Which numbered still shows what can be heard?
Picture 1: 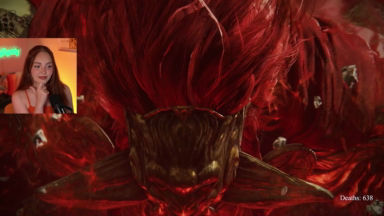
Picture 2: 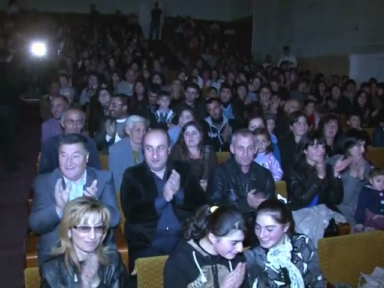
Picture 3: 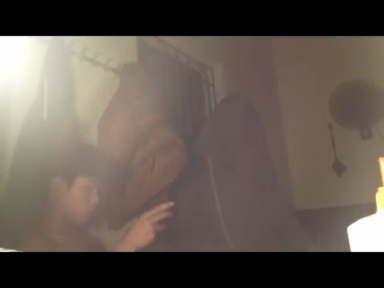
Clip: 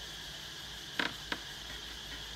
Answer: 3